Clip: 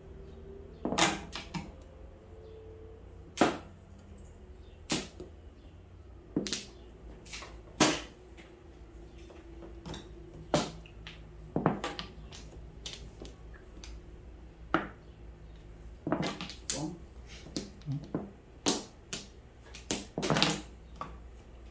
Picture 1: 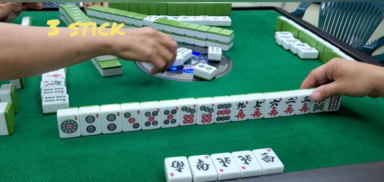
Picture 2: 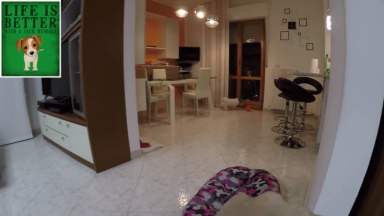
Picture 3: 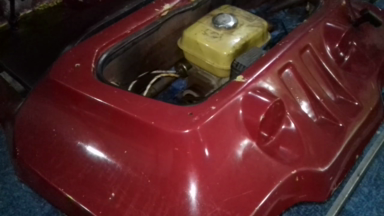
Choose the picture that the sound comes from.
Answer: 1